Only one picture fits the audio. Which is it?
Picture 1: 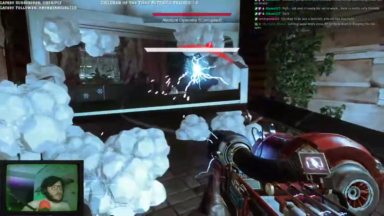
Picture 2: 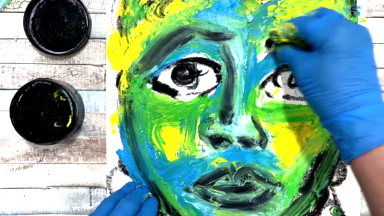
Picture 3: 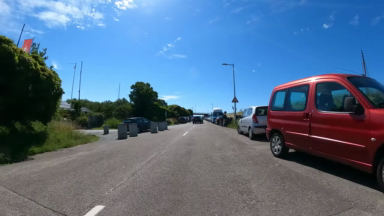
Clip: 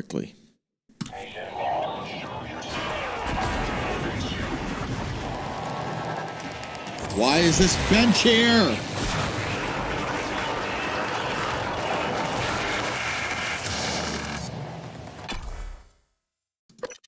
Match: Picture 1